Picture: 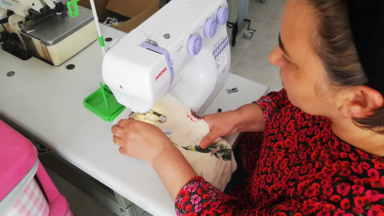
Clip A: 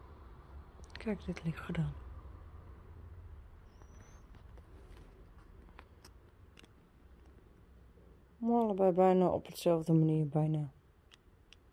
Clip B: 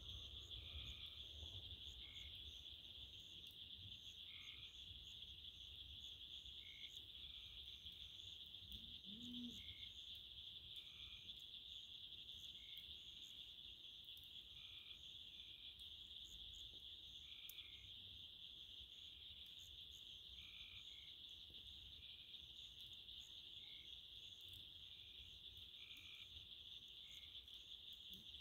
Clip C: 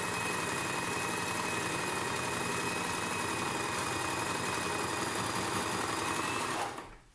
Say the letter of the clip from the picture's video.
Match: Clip C